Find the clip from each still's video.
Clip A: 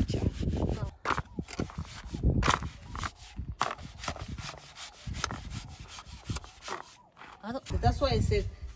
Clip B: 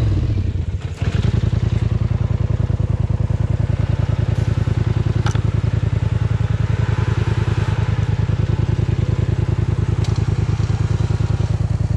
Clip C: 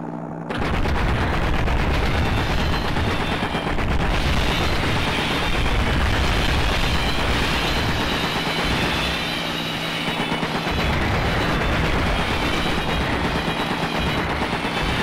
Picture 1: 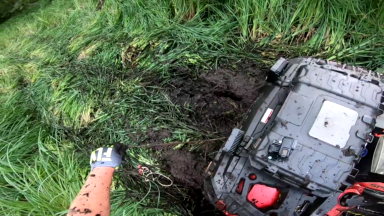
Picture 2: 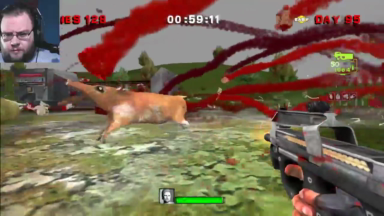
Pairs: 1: B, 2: C